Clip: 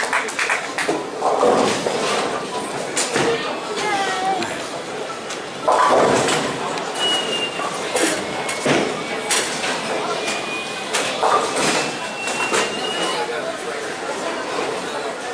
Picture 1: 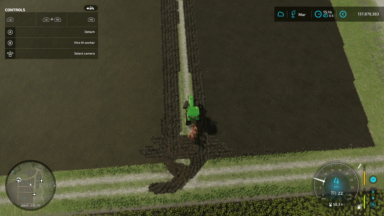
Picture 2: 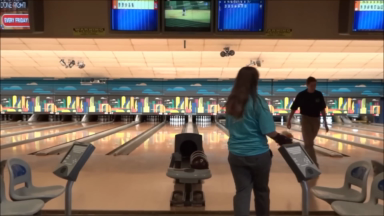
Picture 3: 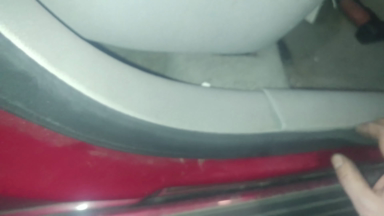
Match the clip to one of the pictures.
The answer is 2